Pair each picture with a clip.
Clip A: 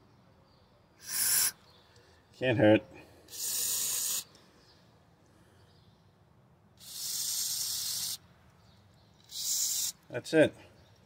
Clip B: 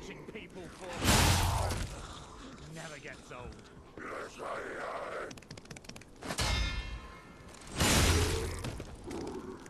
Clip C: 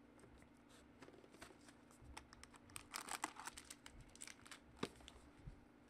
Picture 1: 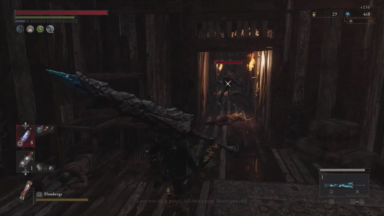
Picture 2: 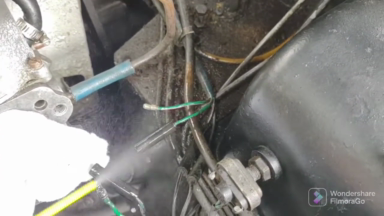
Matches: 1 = B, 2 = A